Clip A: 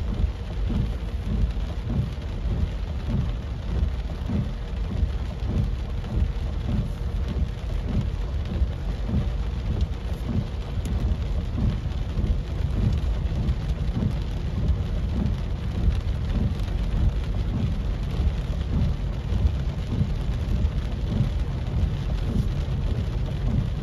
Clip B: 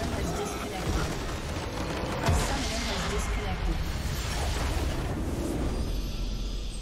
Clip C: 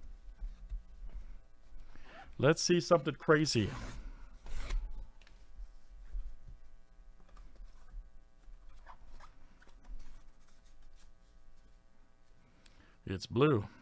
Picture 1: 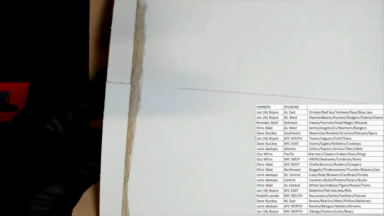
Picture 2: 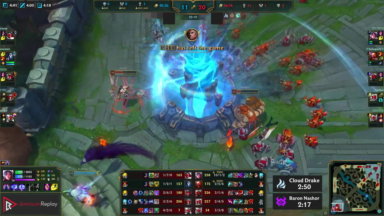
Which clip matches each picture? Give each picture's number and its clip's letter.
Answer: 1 C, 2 B